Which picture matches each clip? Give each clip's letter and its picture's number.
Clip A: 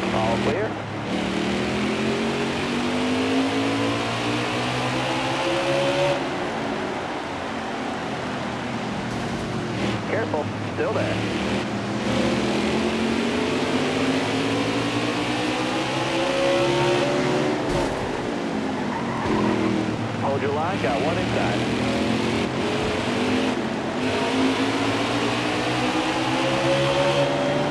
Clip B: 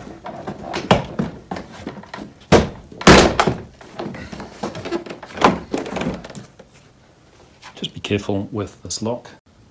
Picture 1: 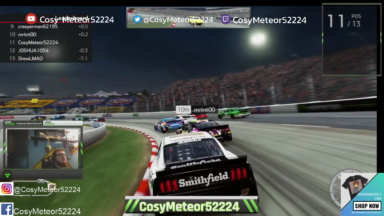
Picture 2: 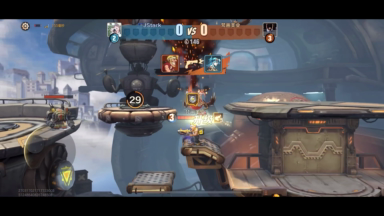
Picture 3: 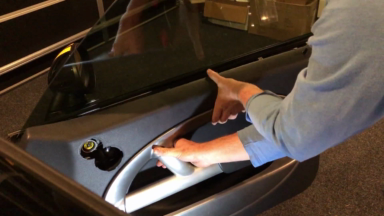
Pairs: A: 1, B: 3